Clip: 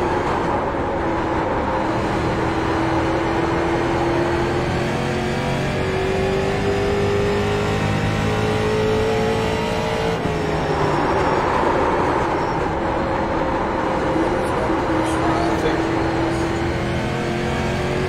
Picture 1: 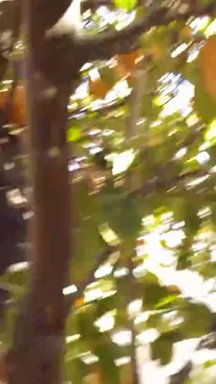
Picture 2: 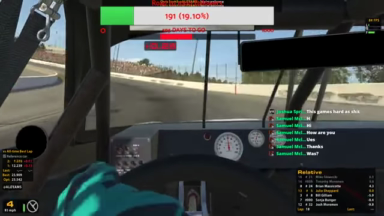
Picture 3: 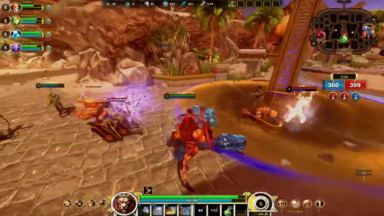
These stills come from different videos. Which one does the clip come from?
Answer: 2